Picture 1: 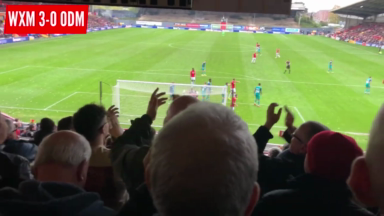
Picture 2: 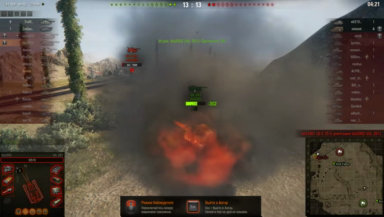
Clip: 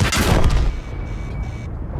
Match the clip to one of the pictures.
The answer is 2